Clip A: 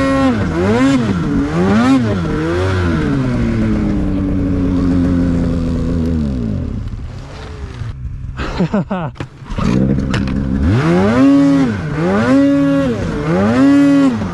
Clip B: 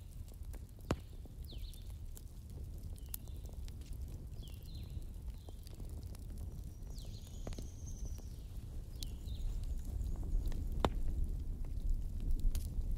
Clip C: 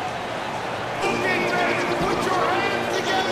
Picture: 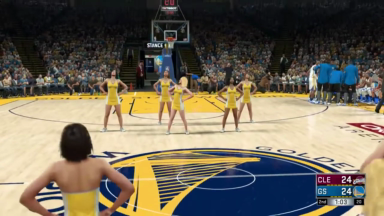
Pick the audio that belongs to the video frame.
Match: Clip C